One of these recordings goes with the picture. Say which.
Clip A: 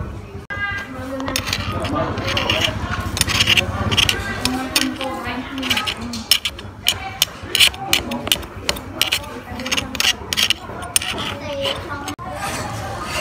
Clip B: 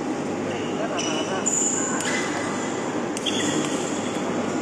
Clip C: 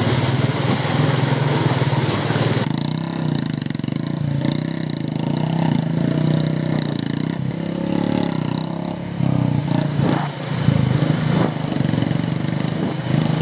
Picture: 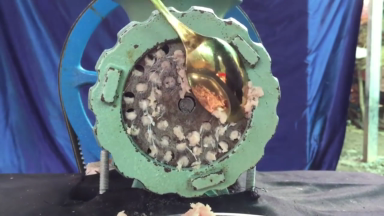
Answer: A